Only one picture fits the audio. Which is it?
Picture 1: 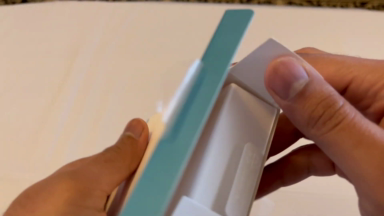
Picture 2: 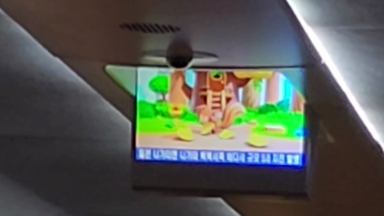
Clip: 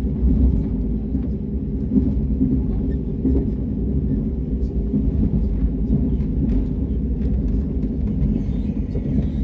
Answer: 2